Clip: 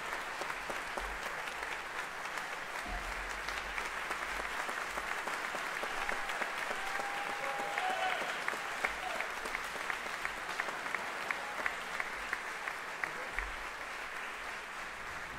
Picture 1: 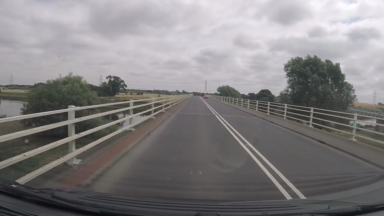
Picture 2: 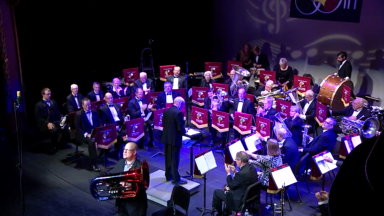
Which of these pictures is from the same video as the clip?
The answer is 2